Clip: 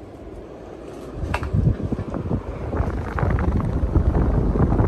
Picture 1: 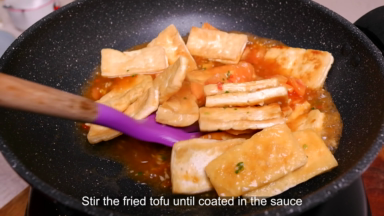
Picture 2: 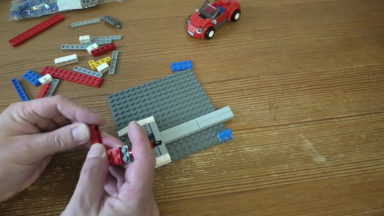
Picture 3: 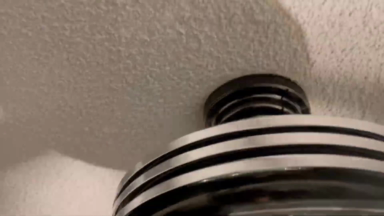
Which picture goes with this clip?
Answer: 3